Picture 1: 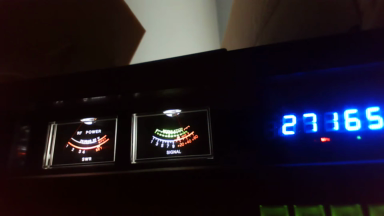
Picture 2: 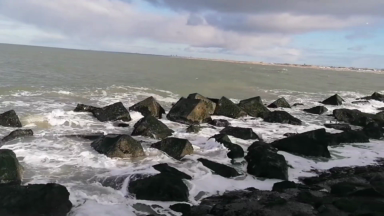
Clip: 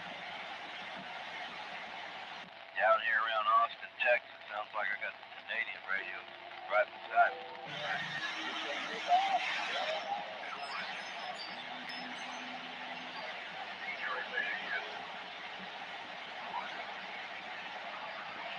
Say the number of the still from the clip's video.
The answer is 1